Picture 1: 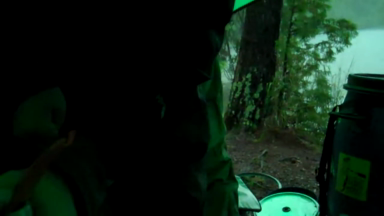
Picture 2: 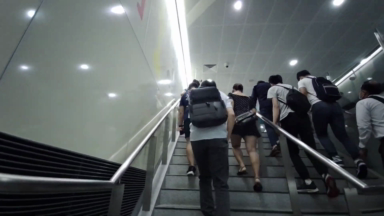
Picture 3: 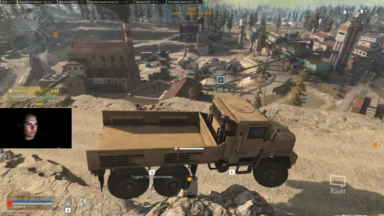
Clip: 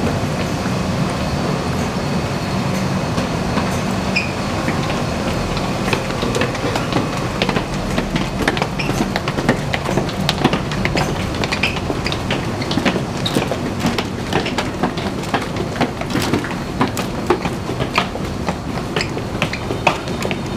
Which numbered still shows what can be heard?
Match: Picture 2